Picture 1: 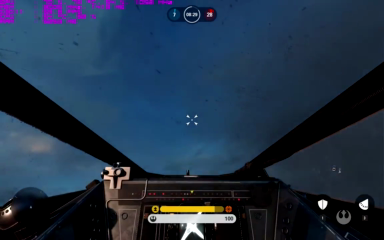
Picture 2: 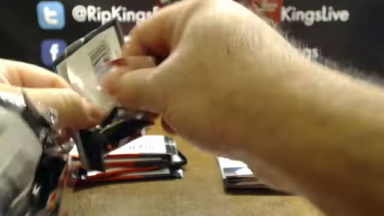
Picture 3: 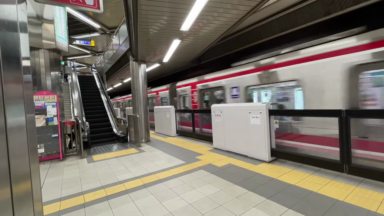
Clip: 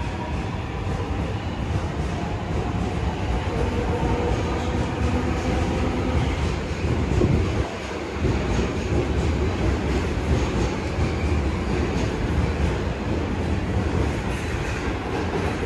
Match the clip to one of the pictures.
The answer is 3